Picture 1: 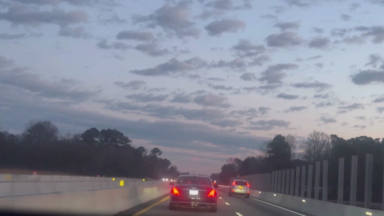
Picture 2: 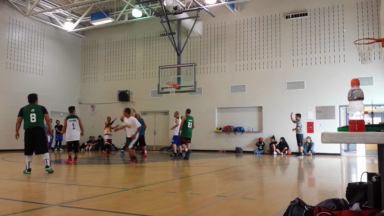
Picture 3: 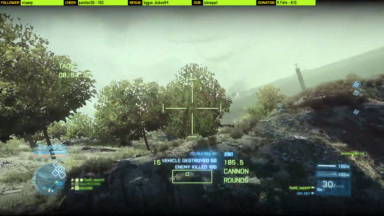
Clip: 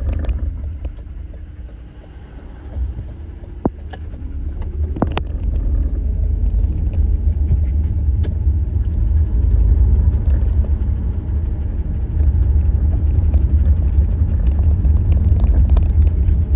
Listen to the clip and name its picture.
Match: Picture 1